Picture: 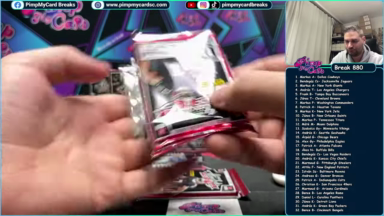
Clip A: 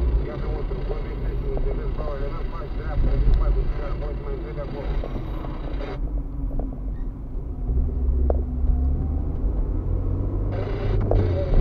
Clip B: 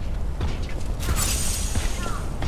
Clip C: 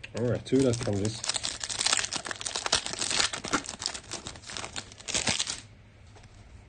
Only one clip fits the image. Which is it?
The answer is C